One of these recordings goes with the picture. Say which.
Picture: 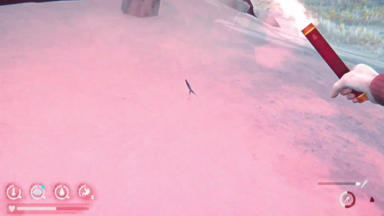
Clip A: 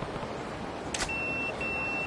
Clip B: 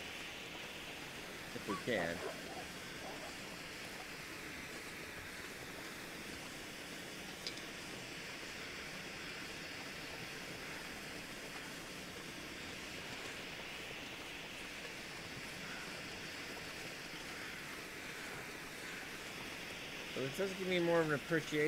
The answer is B